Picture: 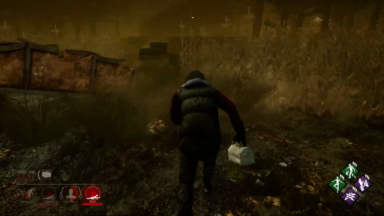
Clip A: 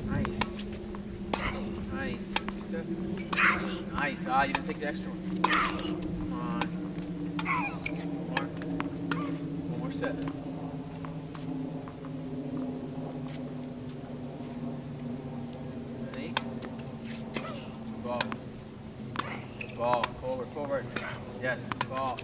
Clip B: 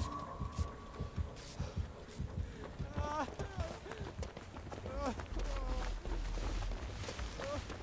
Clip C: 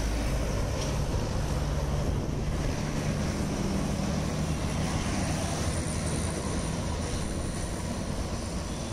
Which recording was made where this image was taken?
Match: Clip B